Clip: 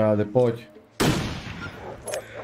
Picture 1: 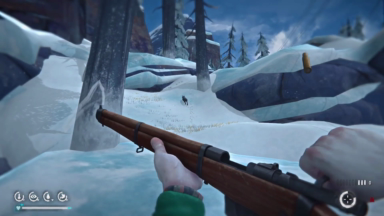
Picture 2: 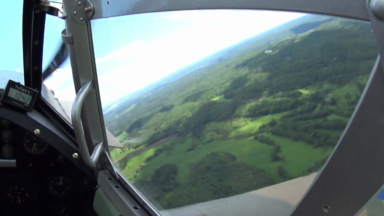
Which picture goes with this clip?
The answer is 1